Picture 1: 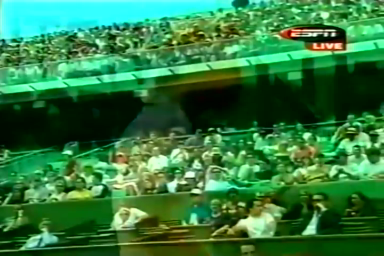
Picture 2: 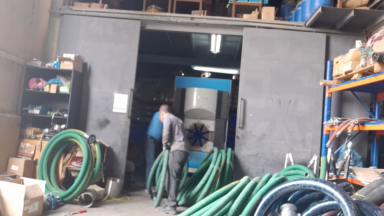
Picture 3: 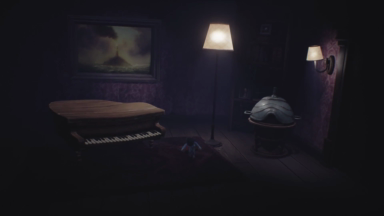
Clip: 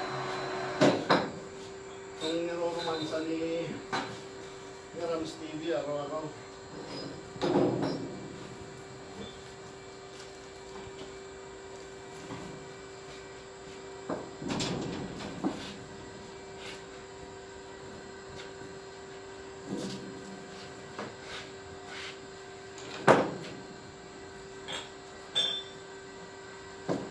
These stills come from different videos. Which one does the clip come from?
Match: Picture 2